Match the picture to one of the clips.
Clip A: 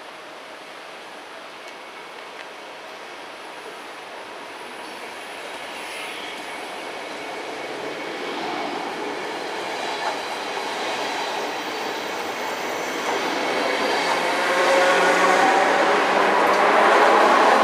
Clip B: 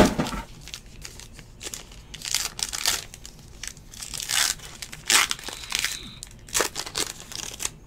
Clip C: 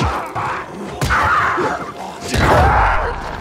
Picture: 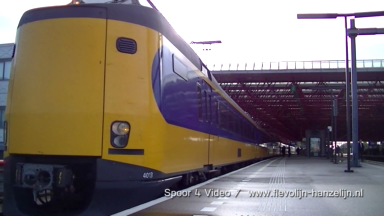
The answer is A